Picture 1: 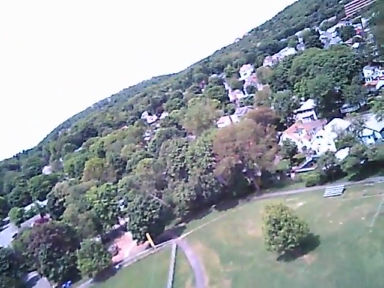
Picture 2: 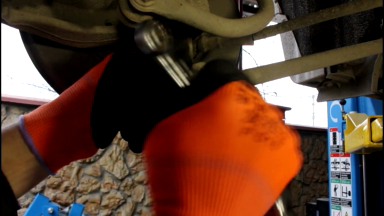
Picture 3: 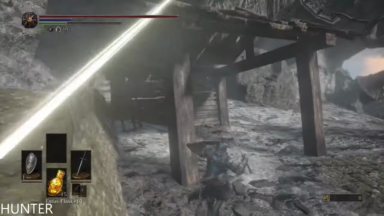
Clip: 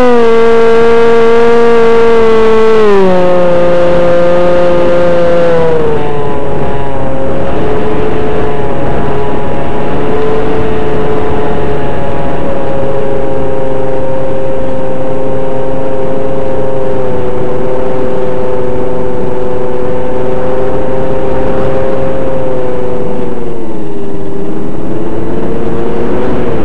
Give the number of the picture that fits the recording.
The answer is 1